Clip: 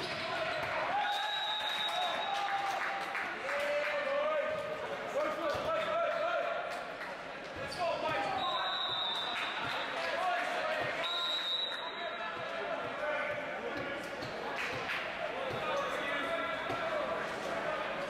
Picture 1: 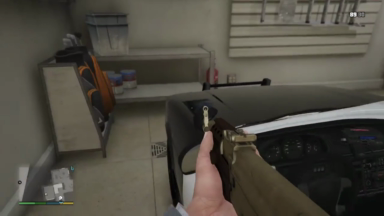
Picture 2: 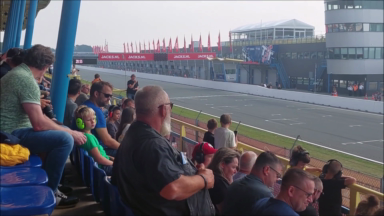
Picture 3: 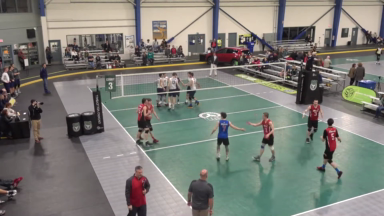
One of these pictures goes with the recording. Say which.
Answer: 3